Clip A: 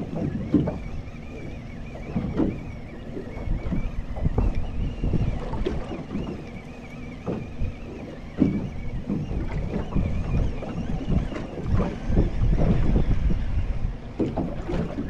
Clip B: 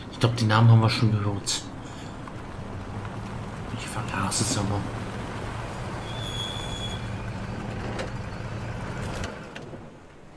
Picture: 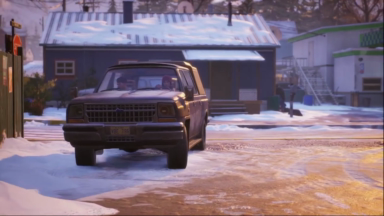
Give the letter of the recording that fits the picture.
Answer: B